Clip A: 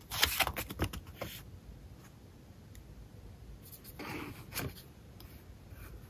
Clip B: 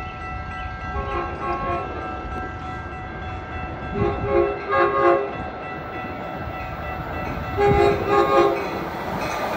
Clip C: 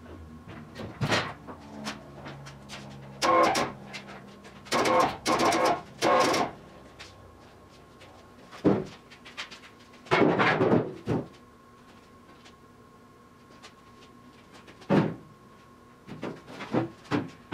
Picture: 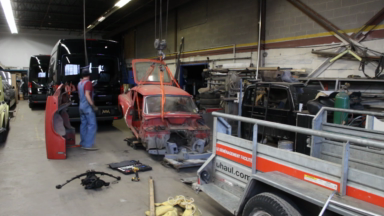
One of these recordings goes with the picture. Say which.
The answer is C